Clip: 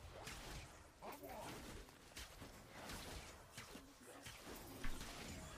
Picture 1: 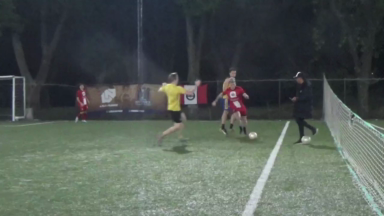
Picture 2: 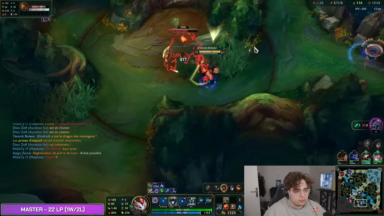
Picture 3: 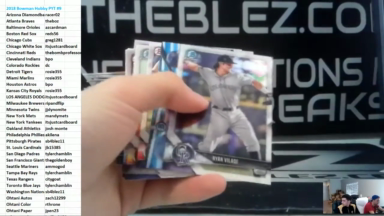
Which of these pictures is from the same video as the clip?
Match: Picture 2